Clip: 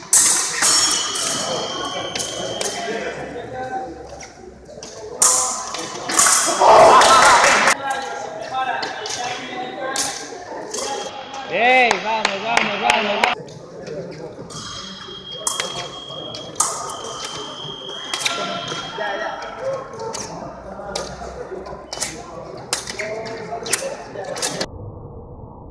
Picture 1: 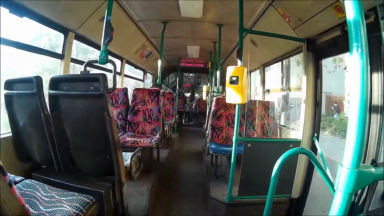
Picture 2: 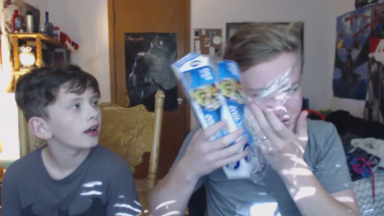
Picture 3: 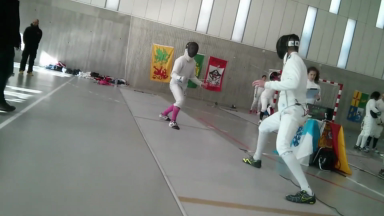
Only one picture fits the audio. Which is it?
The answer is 3